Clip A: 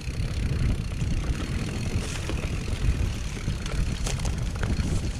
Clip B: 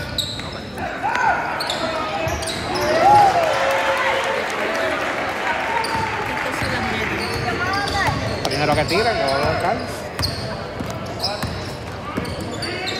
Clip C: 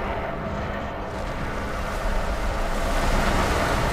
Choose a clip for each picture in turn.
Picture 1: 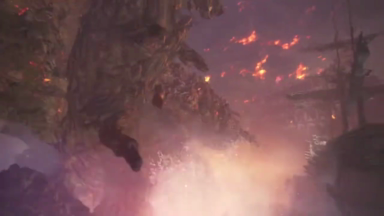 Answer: C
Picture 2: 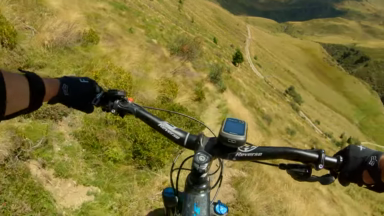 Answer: A